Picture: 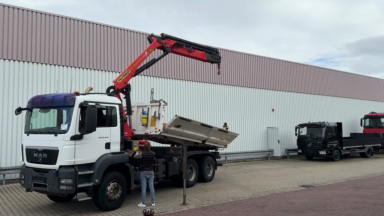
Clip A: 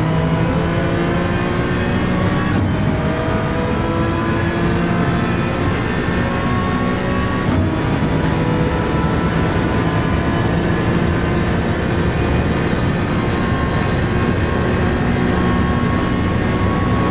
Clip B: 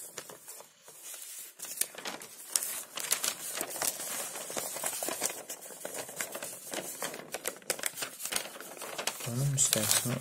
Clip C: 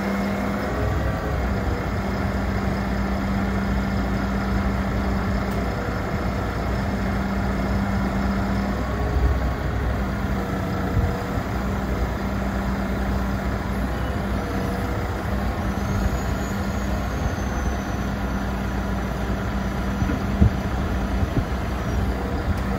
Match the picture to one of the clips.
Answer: C